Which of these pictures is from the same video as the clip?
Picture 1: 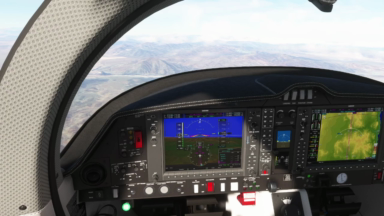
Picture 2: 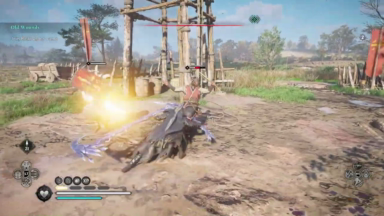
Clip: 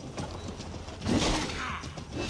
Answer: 2